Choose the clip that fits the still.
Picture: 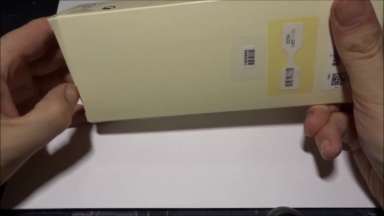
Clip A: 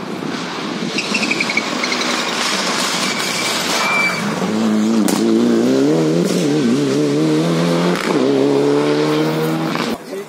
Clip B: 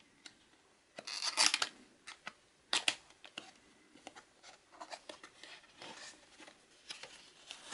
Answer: B